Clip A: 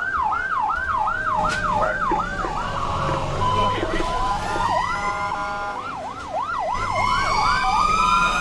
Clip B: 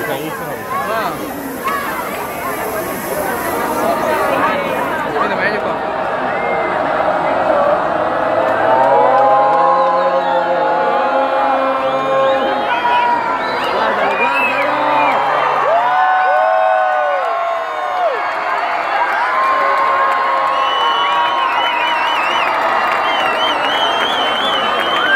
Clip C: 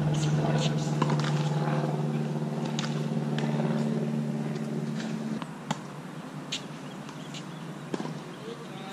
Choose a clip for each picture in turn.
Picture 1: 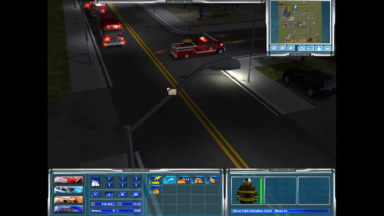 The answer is A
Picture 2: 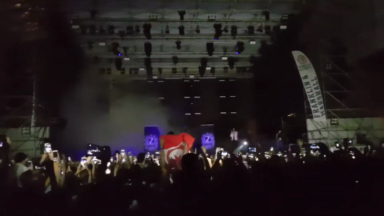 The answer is B